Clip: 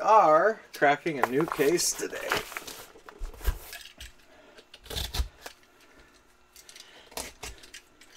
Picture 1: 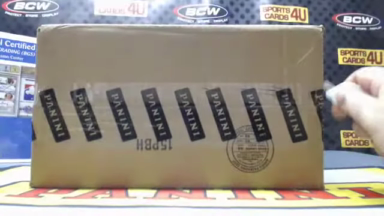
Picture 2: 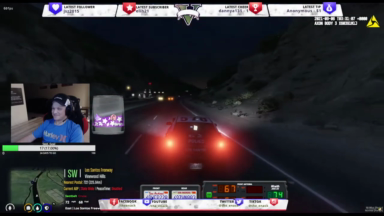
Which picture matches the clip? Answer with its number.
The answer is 1